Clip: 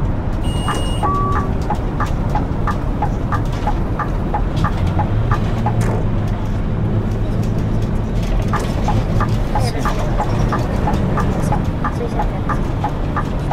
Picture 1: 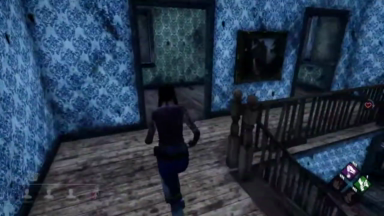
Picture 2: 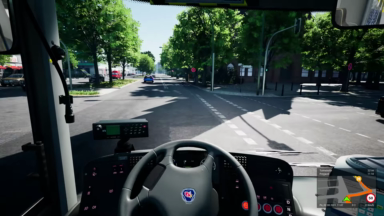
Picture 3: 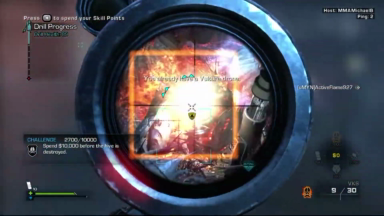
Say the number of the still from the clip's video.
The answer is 2